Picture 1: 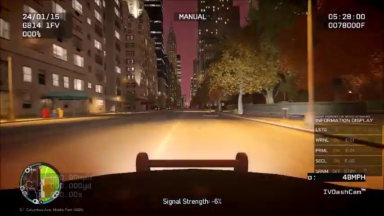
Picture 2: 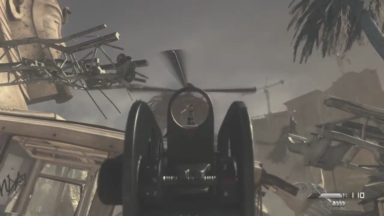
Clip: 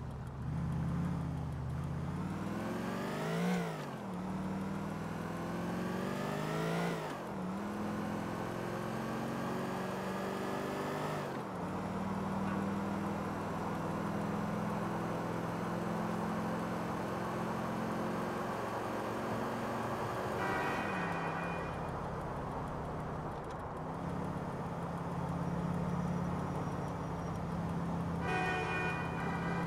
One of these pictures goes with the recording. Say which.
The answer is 1